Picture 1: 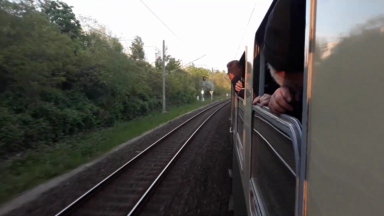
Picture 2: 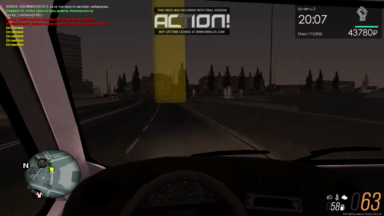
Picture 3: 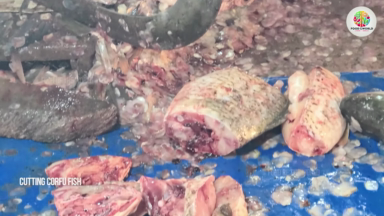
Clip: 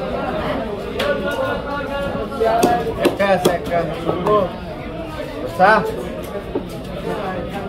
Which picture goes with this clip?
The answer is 3